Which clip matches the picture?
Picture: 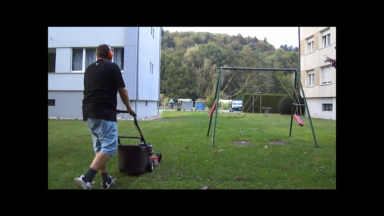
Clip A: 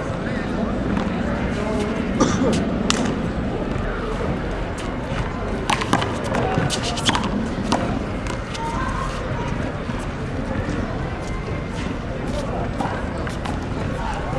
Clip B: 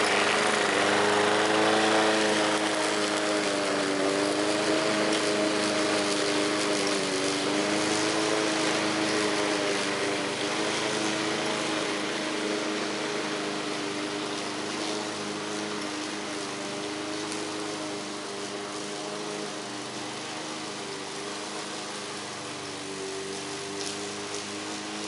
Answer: B